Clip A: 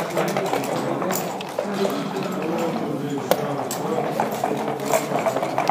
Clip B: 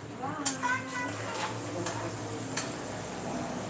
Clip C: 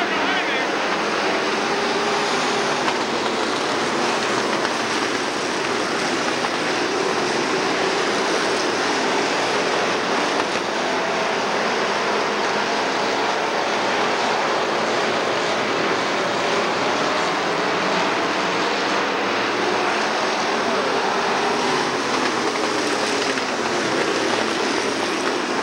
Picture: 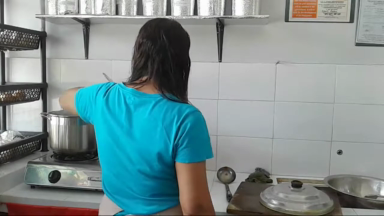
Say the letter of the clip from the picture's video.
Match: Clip B